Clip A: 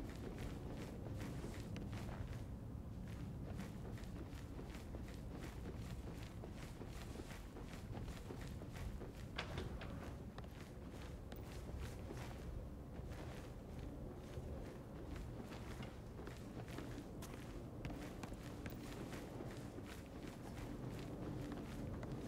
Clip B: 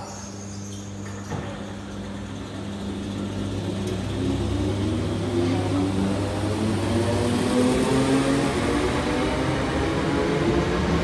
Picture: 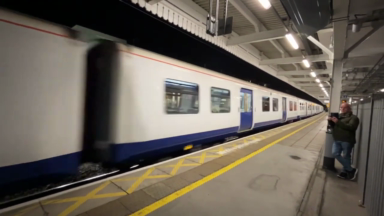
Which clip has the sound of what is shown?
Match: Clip B